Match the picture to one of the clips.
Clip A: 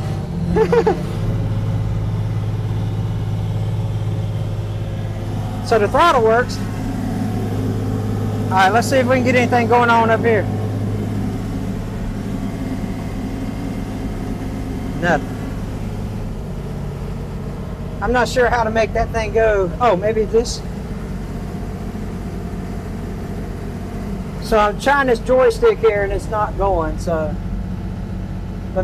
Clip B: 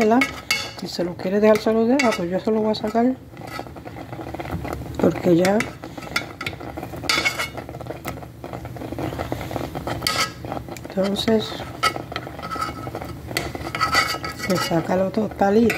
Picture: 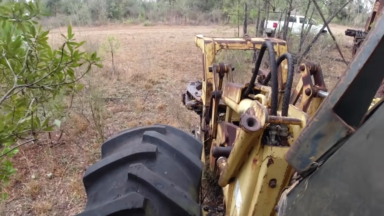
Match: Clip A